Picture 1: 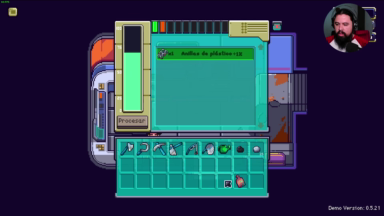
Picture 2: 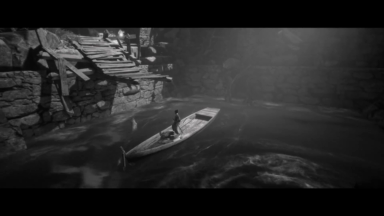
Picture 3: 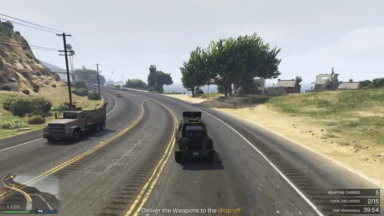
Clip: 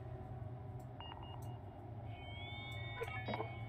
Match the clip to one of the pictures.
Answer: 1